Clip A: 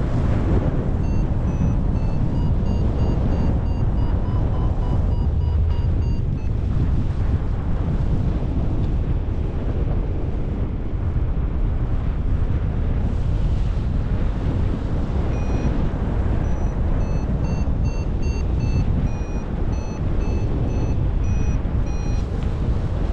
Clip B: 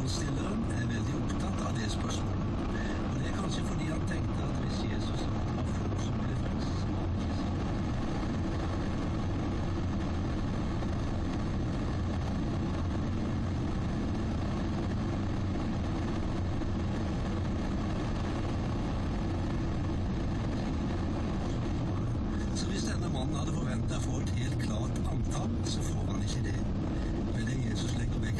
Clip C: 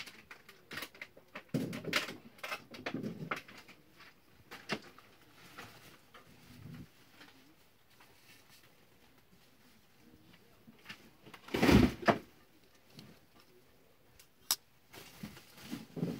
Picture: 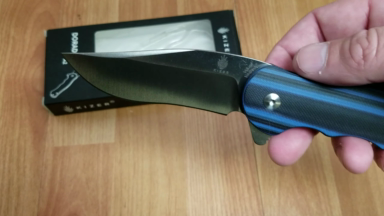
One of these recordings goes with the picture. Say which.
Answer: C